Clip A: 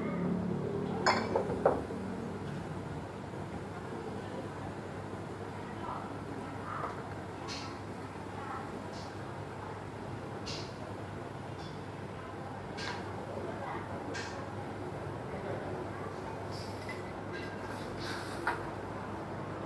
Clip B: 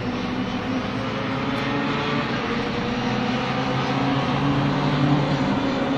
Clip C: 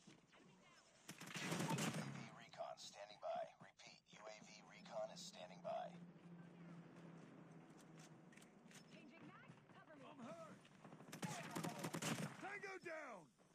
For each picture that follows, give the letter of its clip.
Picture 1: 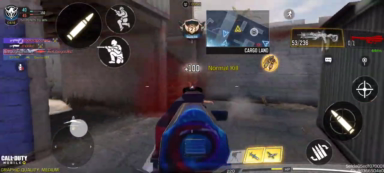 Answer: C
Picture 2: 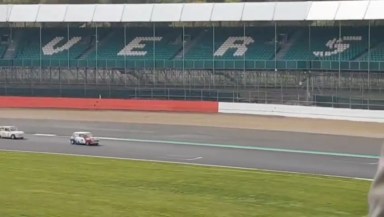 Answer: B